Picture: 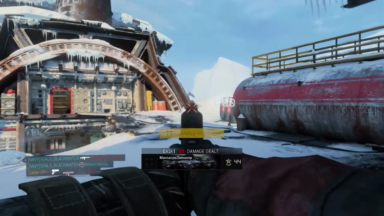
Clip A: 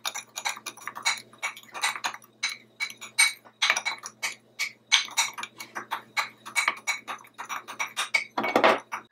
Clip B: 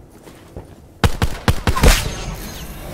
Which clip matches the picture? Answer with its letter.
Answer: B